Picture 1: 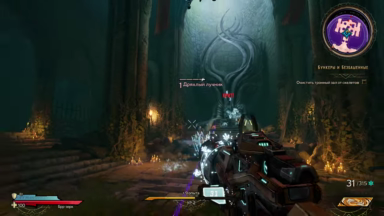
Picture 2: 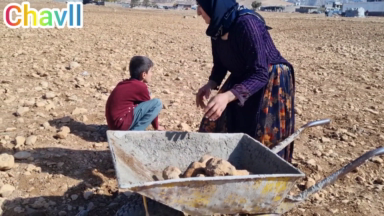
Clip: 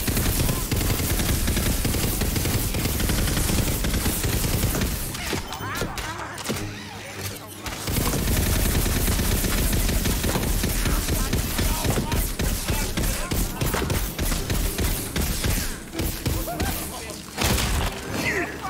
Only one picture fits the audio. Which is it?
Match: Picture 1